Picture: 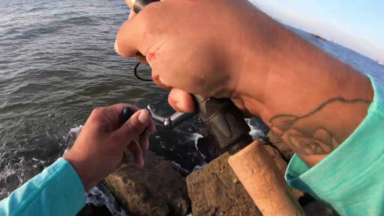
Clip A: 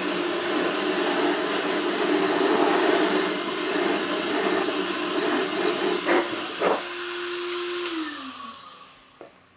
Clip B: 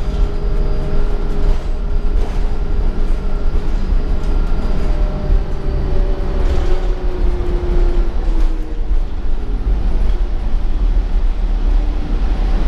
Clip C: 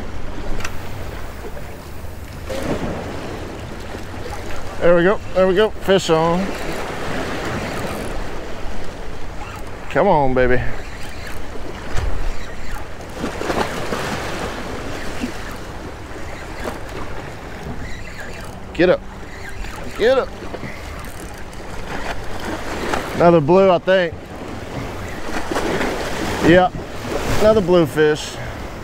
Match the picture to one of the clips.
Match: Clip C